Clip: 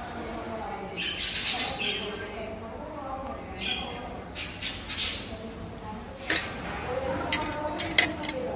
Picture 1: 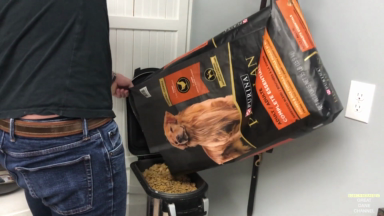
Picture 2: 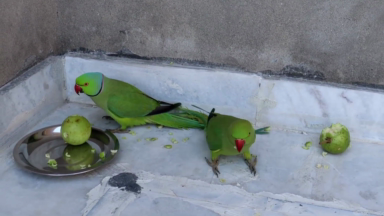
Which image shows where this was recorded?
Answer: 2